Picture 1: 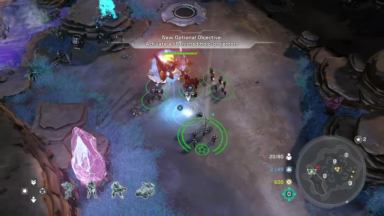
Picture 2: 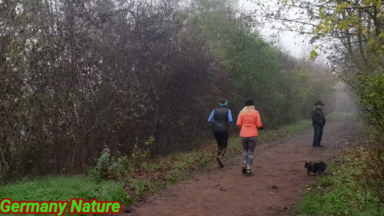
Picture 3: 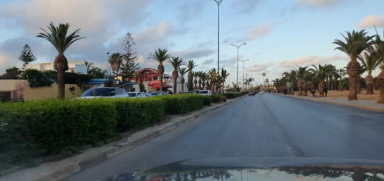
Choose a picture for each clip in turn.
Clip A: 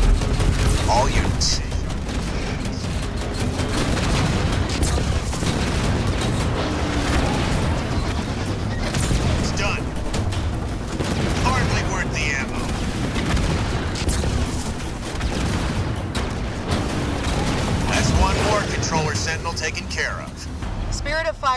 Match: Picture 1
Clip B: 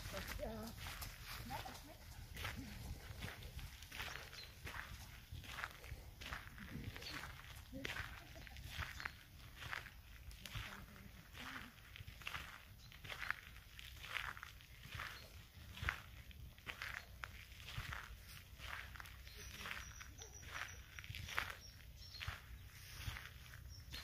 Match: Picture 2